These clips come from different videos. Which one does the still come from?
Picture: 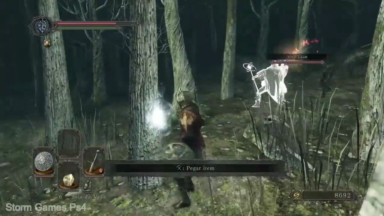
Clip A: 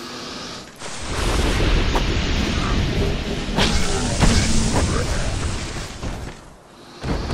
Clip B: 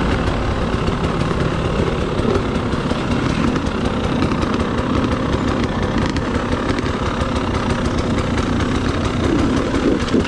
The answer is A